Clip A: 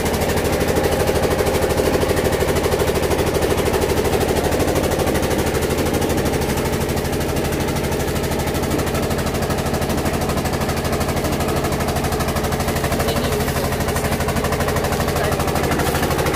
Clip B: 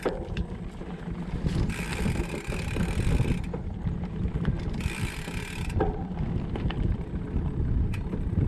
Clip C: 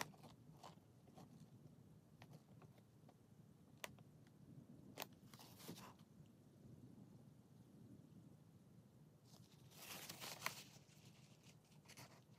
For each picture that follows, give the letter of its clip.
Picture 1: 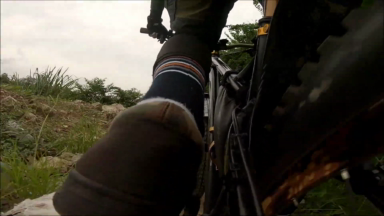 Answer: B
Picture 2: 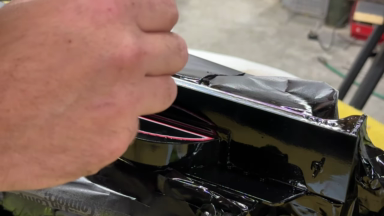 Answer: C